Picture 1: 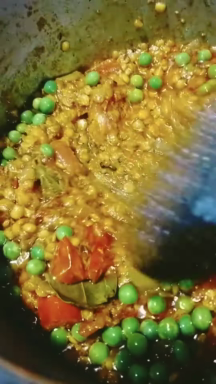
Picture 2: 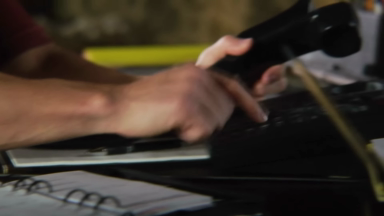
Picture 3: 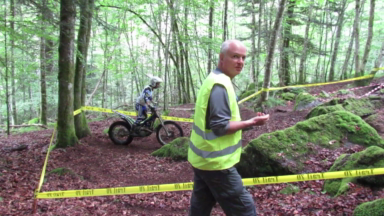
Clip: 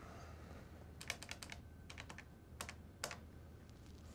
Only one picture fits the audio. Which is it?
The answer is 2